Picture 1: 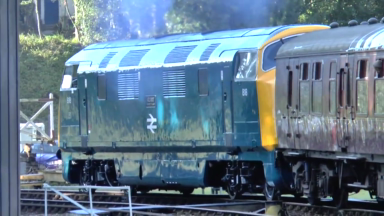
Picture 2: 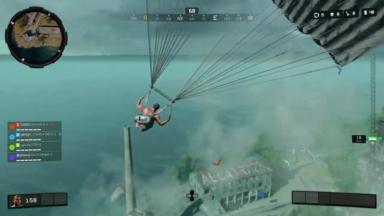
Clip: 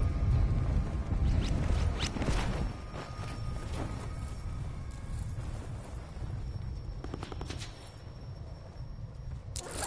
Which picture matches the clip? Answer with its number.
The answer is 2